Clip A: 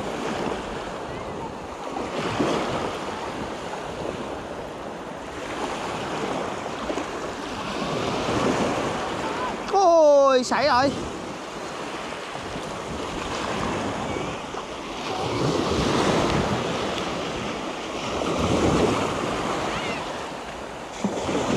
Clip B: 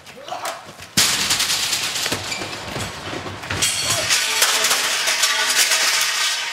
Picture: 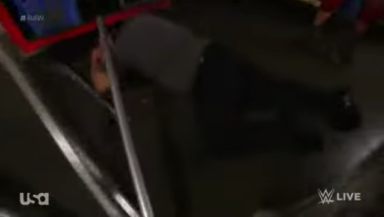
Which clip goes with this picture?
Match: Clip B